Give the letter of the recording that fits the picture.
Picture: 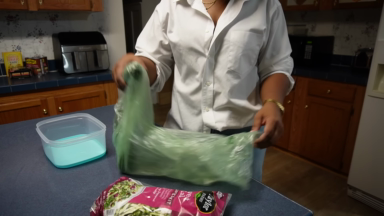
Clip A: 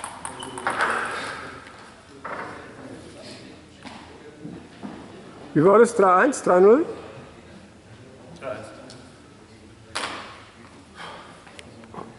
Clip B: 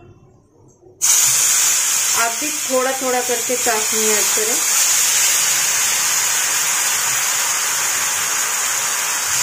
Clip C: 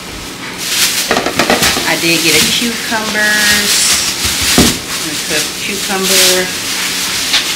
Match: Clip C